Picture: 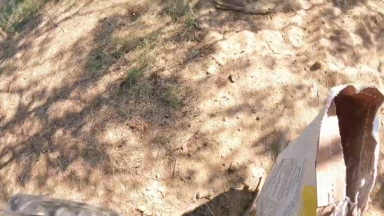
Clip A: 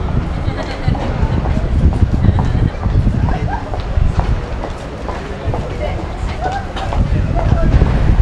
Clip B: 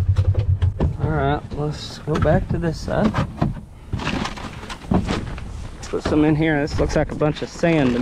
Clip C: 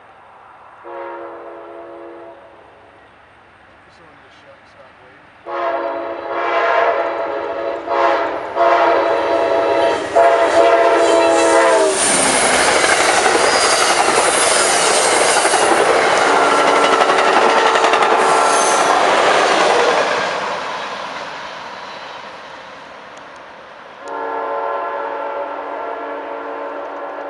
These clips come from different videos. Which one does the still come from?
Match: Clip B